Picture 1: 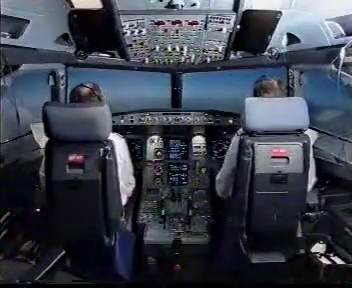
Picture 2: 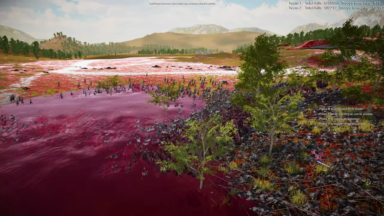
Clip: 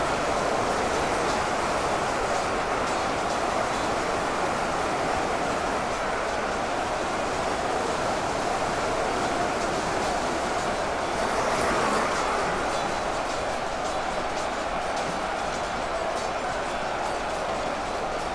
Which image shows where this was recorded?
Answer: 2